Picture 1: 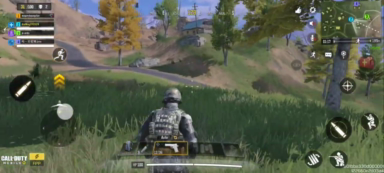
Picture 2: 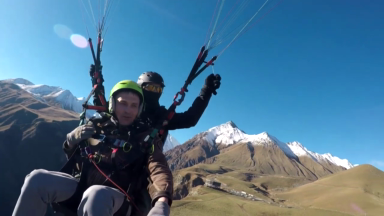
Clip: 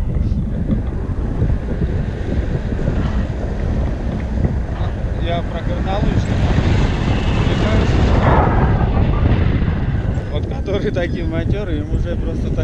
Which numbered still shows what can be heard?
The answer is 2